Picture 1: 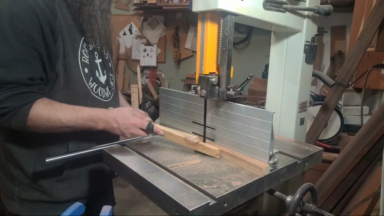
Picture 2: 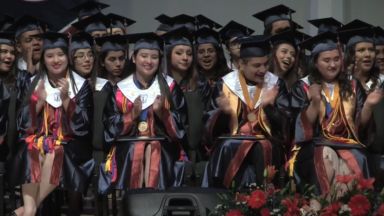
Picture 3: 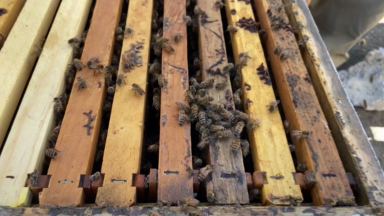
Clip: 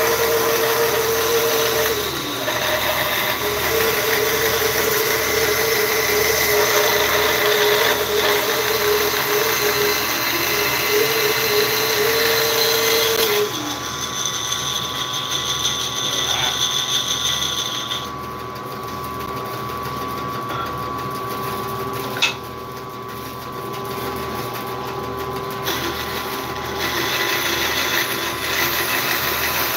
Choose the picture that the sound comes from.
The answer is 1